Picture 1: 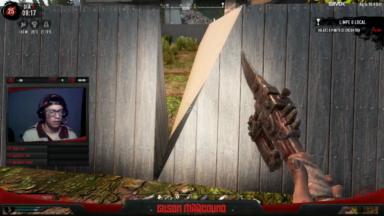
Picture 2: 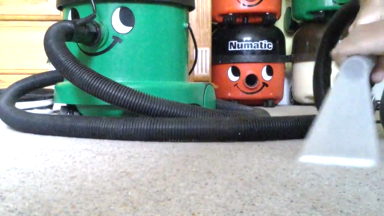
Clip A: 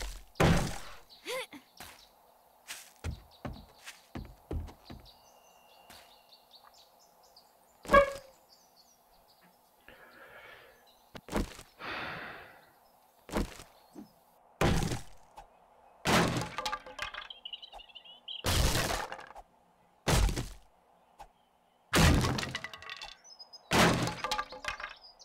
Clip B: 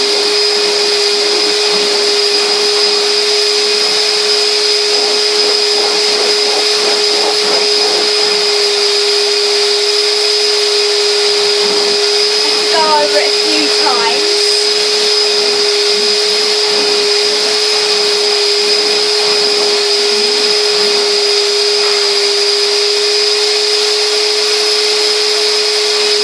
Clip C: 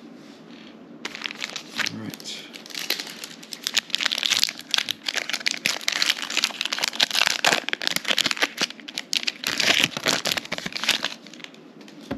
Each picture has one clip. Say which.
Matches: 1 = A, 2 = B